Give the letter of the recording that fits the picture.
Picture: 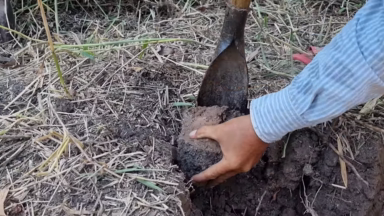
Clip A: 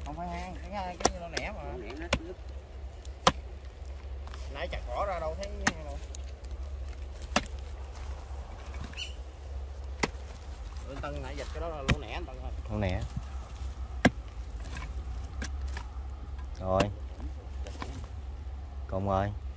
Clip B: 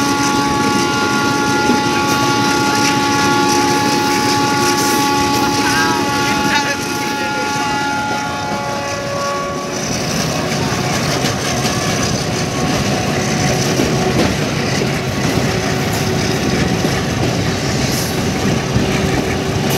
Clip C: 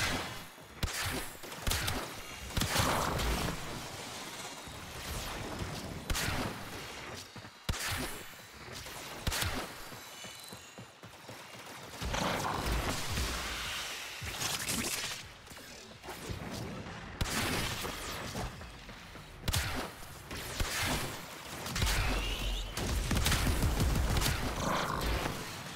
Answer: A